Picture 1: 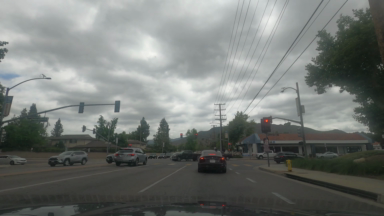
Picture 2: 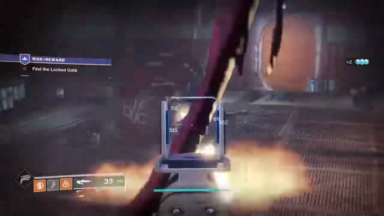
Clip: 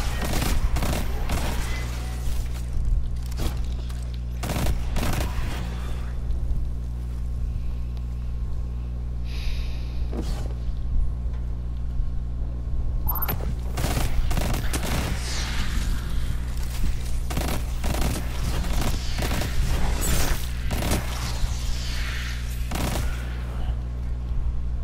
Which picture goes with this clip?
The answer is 2